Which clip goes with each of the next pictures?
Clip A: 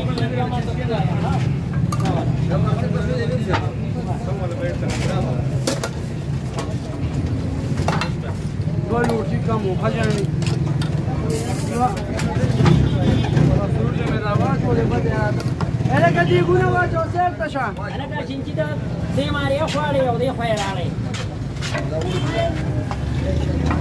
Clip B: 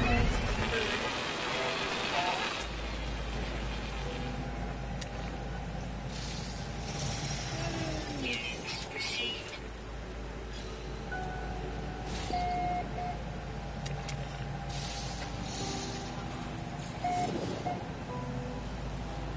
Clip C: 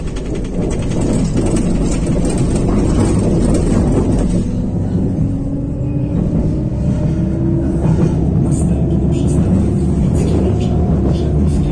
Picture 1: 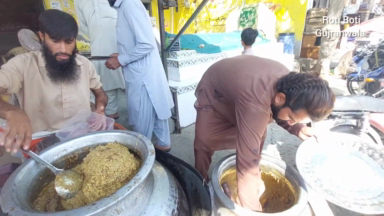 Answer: A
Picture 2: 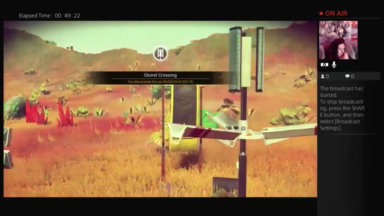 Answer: B